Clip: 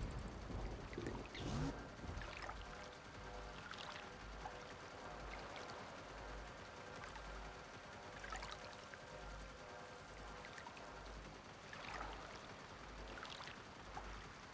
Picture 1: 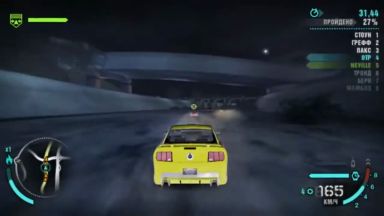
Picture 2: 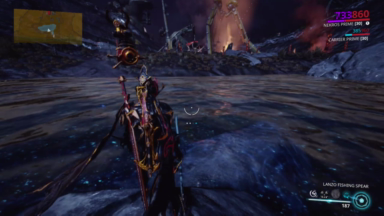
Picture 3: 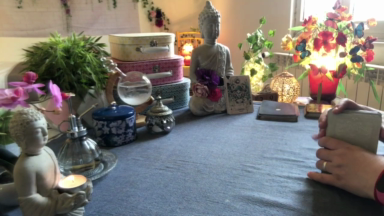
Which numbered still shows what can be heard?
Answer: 2